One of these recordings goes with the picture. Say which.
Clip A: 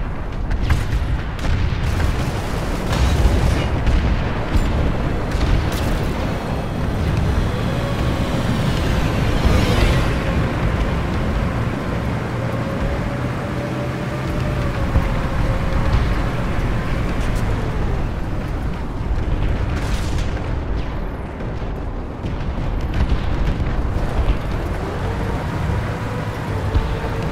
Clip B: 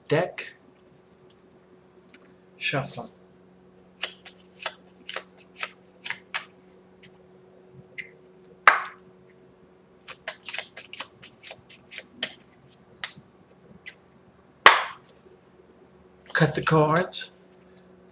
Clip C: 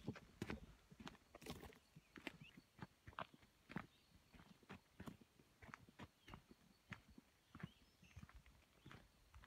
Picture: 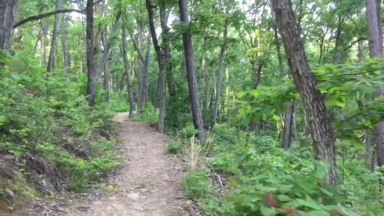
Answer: C